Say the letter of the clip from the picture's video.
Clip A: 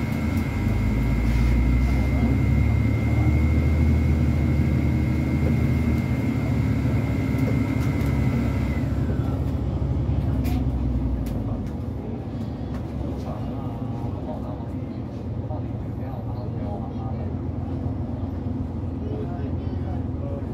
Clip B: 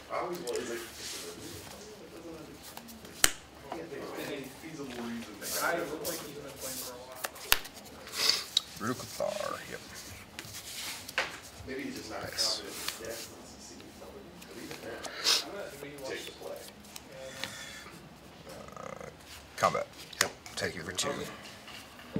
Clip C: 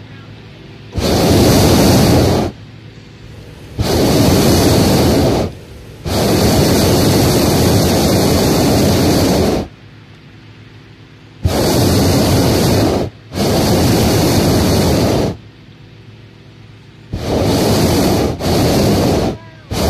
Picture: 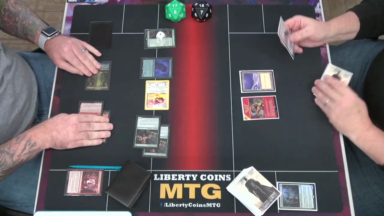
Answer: B